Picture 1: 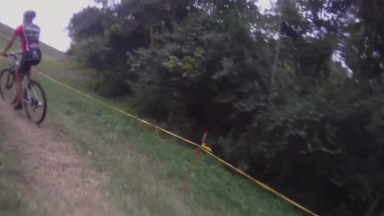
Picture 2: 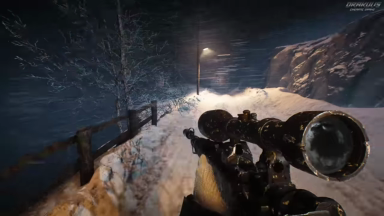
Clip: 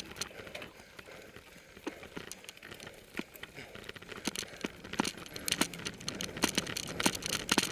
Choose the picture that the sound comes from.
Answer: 1